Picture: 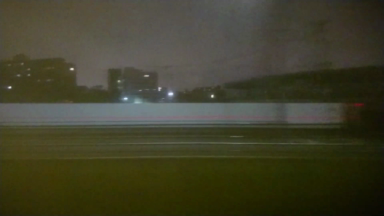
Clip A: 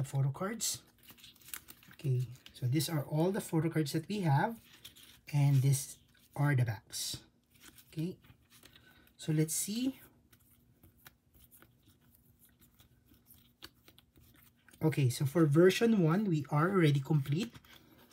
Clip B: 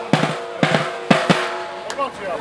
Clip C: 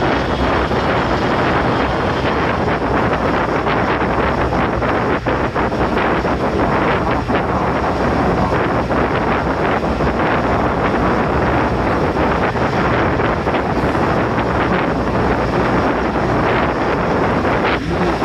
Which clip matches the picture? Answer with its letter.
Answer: C